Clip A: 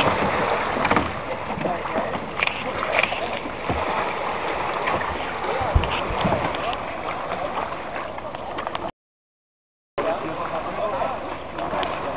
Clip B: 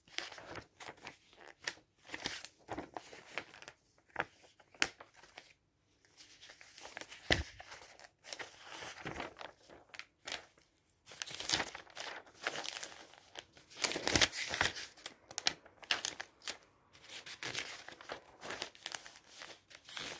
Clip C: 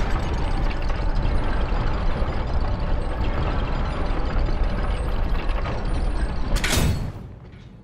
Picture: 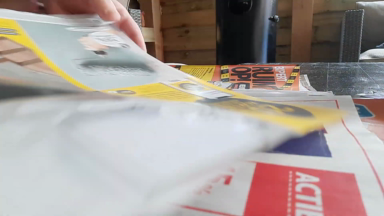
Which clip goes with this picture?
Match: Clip B